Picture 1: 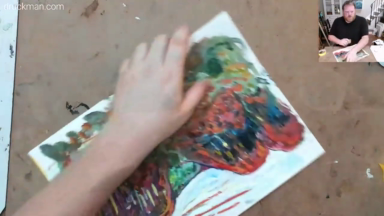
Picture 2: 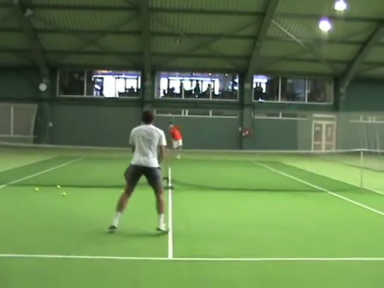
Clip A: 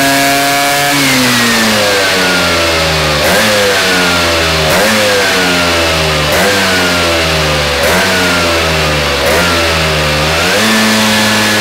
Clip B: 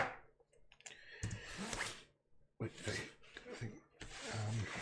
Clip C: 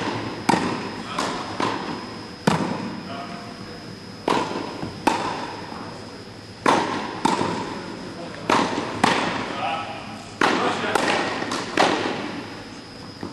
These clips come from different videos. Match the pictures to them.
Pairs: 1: B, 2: C